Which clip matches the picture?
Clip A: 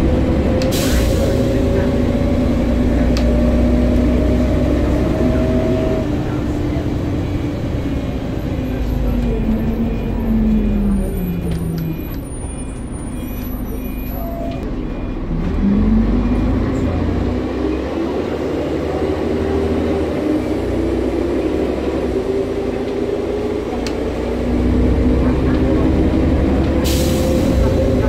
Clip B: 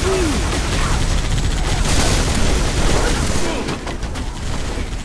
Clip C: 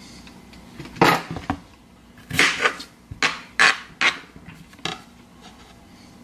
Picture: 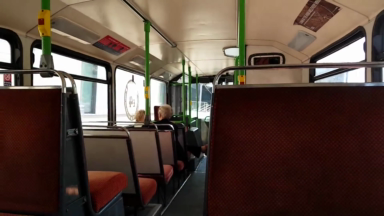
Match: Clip A